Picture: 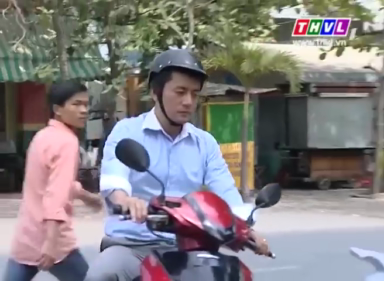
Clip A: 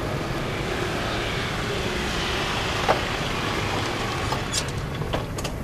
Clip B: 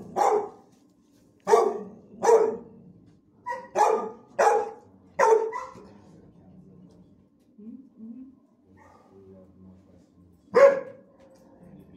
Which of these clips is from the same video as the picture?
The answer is A